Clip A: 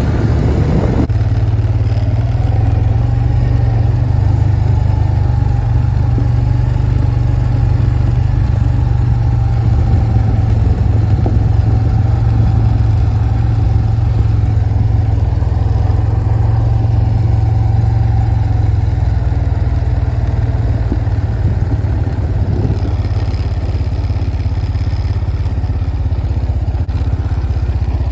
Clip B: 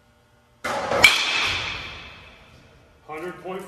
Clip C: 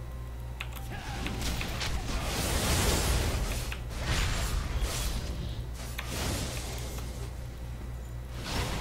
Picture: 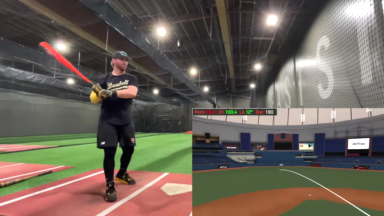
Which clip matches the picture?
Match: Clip B